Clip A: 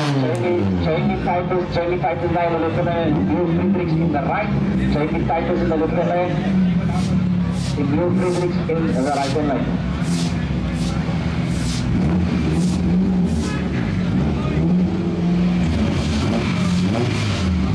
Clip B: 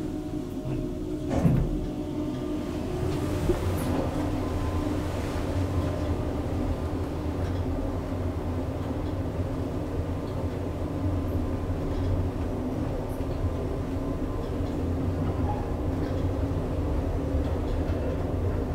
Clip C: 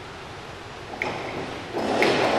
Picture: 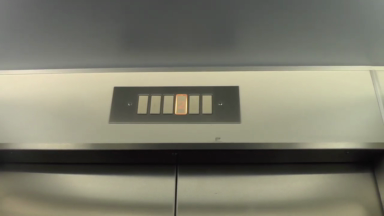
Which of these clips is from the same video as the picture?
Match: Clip B